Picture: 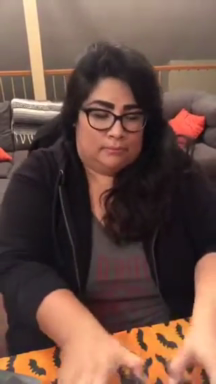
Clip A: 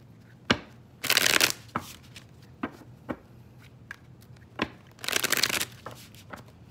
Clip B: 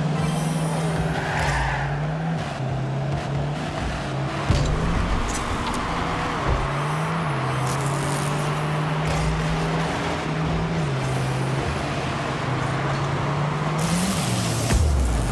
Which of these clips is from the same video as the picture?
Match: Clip A